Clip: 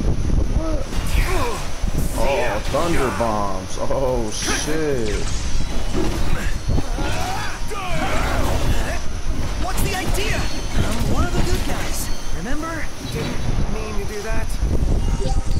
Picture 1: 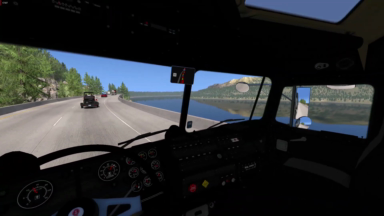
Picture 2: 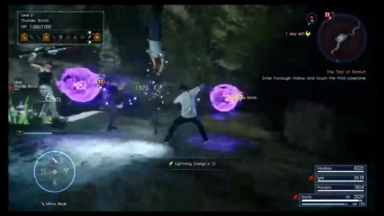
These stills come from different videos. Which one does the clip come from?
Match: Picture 2